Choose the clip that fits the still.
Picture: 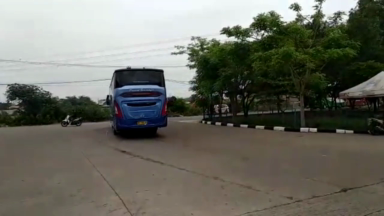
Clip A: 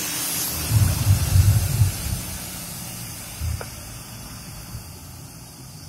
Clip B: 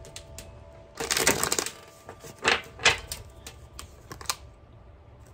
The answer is A